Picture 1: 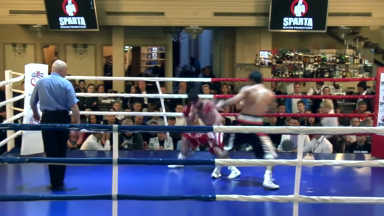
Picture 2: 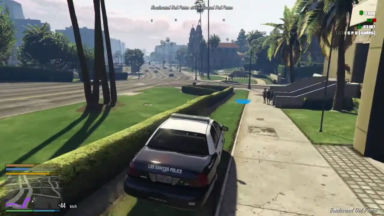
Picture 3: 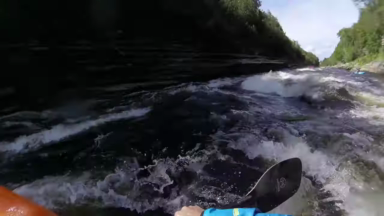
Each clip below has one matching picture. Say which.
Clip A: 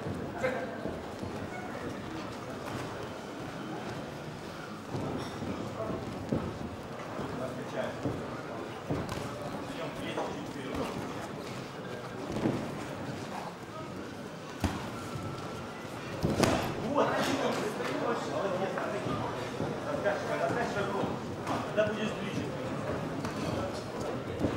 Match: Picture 1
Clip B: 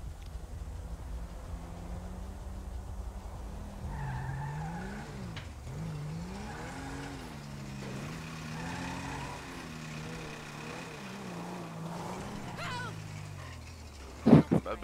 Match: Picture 2